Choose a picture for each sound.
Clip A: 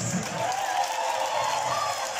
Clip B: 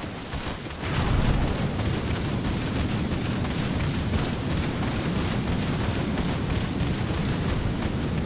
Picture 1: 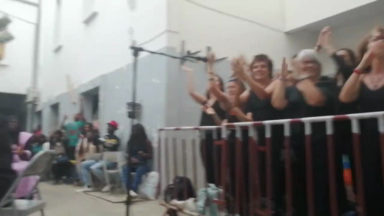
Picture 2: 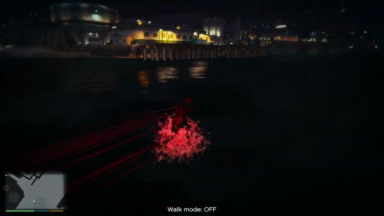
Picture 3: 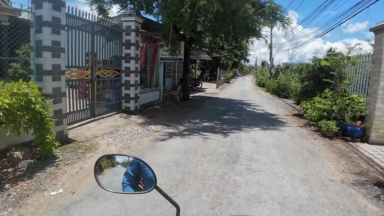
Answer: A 1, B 2